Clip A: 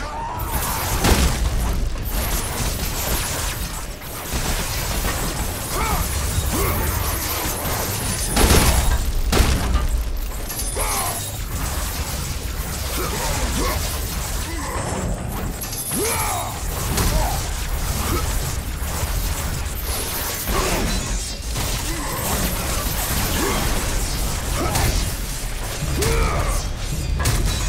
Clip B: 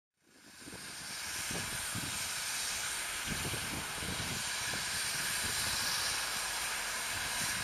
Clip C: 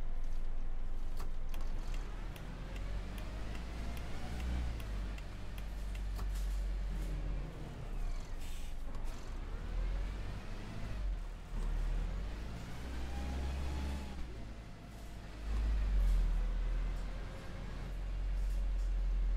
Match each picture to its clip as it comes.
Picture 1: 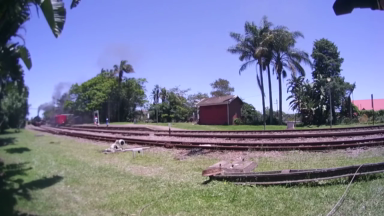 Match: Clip B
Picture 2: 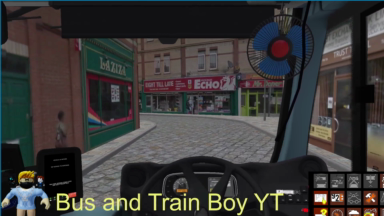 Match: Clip C